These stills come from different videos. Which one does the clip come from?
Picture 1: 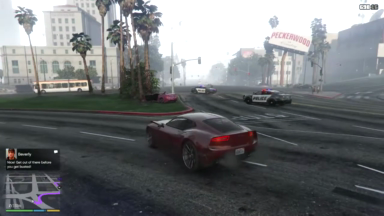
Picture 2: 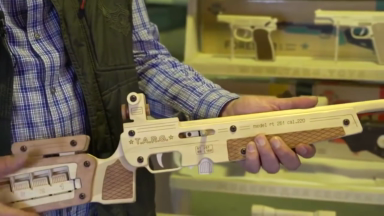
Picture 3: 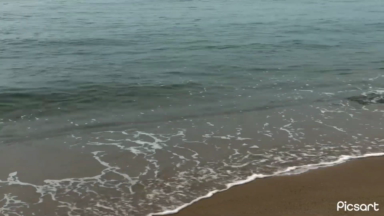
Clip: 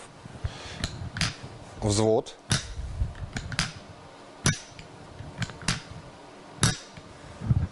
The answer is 2